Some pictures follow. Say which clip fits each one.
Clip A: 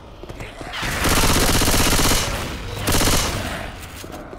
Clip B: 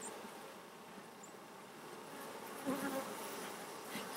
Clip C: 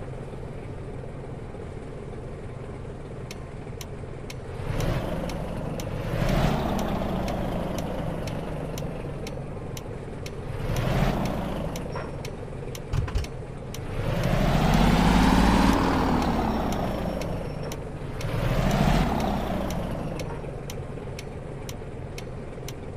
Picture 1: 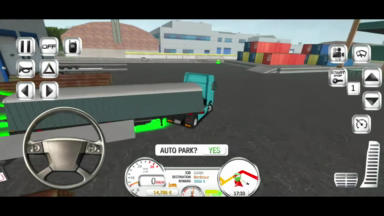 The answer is C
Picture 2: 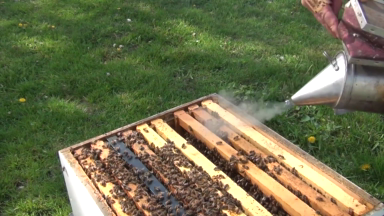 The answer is B